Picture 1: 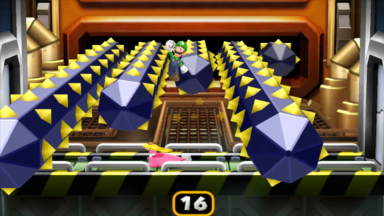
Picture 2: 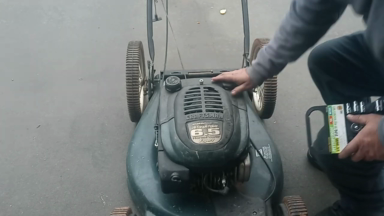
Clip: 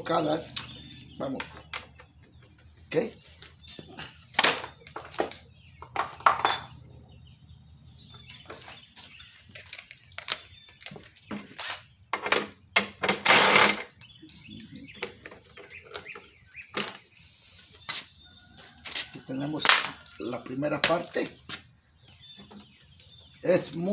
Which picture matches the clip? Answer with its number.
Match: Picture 2